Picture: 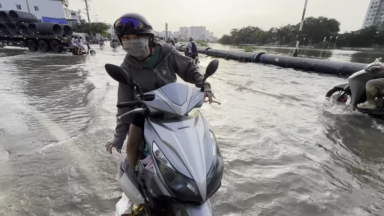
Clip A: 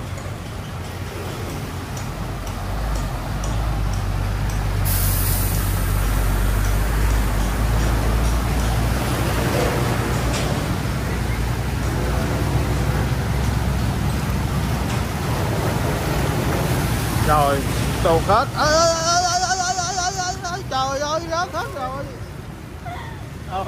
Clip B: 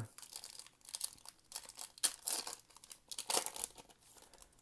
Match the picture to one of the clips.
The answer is A